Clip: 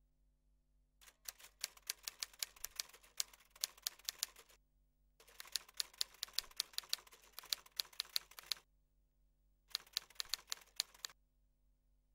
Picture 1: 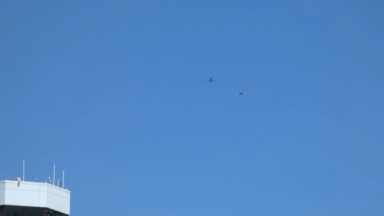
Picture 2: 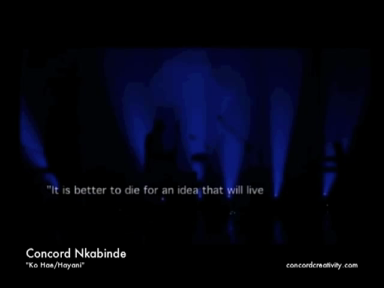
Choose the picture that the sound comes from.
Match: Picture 2